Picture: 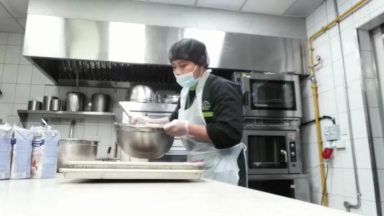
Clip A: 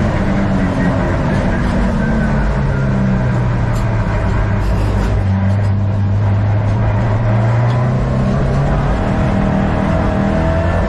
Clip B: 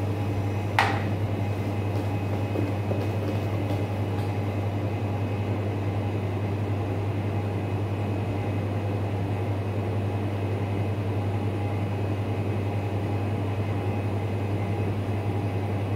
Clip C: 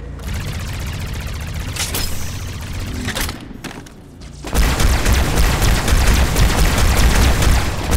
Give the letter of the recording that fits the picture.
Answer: B